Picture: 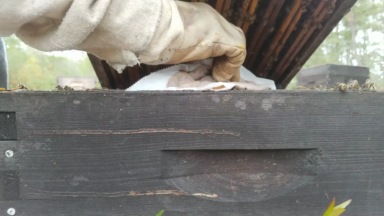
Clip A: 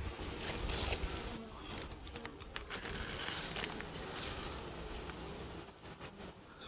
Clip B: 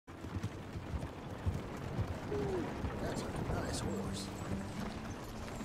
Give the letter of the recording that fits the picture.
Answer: A